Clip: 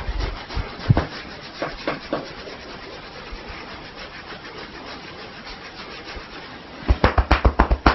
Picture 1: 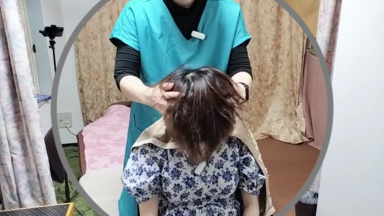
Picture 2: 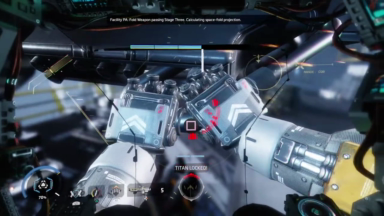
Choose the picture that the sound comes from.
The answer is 1